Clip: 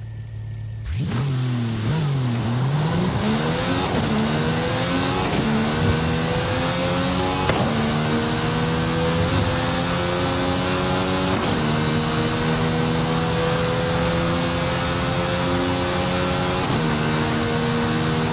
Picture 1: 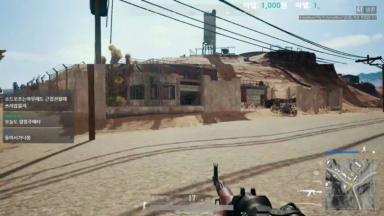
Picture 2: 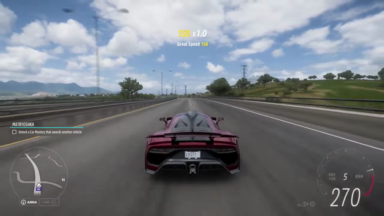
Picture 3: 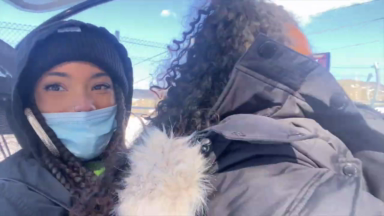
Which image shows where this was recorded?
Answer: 2